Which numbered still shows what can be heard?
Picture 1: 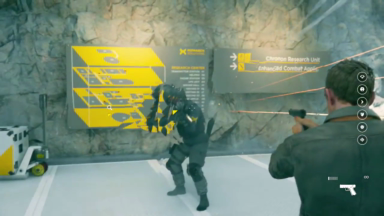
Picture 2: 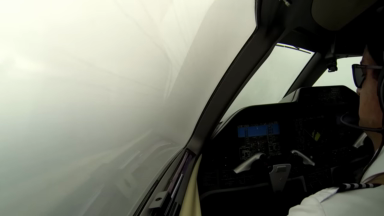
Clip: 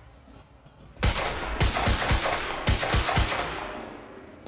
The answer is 1